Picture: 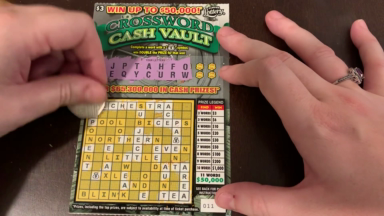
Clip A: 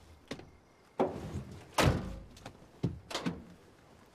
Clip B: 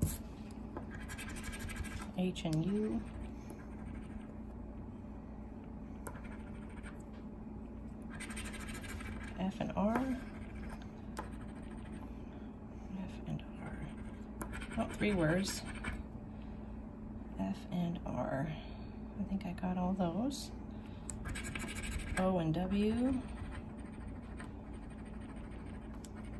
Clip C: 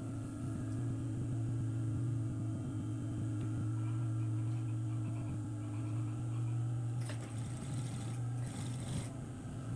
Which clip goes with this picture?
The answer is B